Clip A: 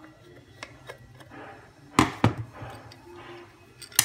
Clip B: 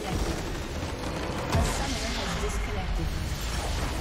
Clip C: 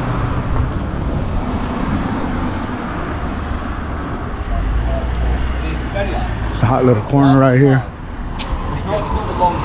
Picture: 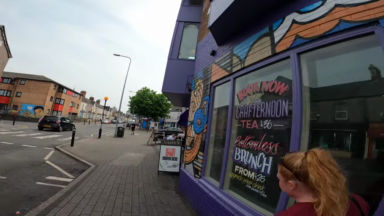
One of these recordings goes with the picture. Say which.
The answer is C